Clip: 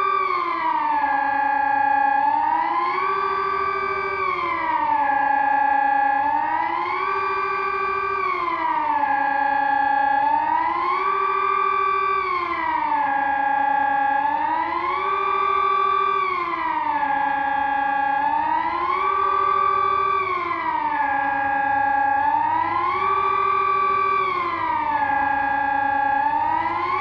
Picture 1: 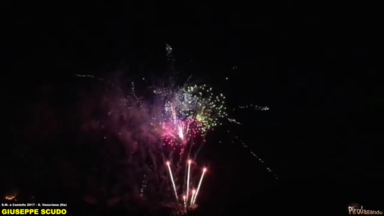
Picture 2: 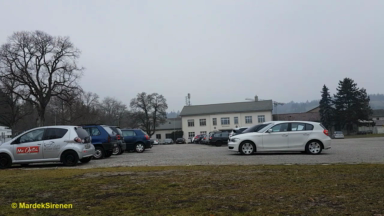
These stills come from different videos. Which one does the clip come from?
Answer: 2